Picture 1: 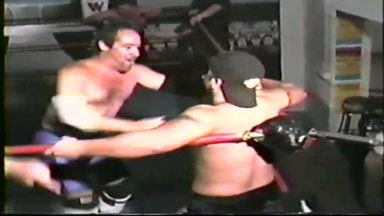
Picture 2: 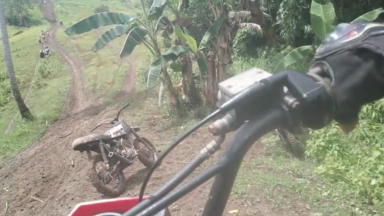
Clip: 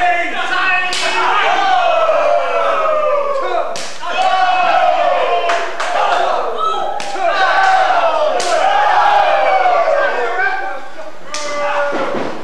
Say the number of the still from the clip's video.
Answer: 1